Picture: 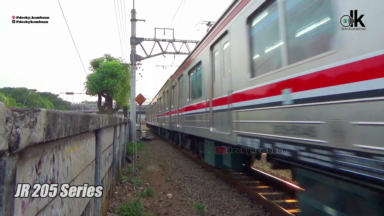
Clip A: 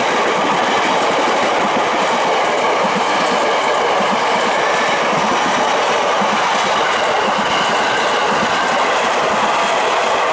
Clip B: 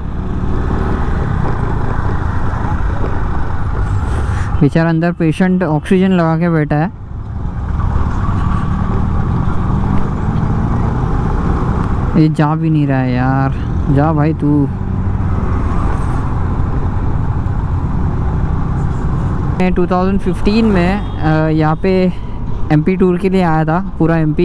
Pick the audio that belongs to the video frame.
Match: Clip A